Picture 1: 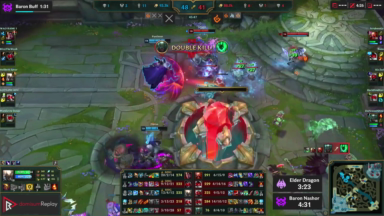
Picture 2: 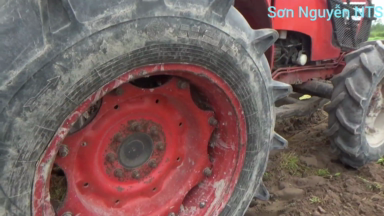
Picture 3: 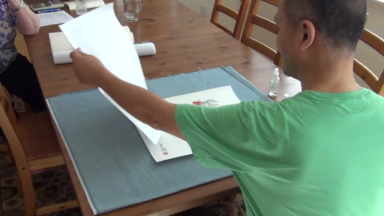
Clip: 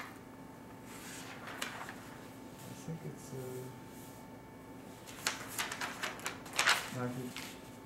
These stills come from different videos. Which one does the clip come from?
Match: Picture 3